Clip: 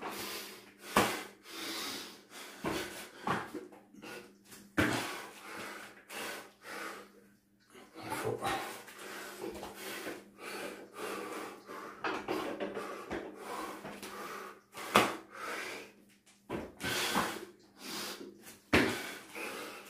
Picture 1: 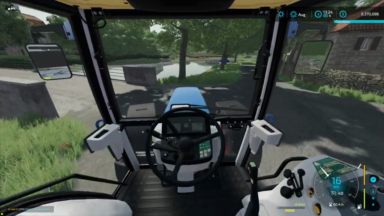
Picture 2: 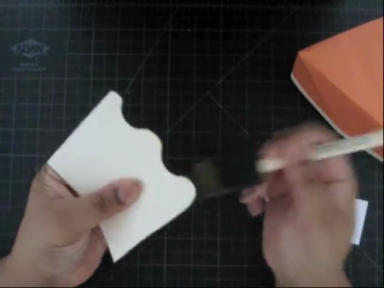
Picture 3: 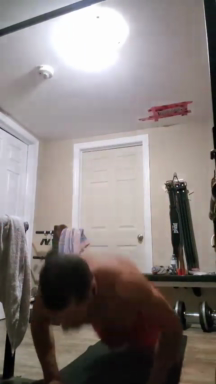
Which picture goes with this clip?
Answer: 3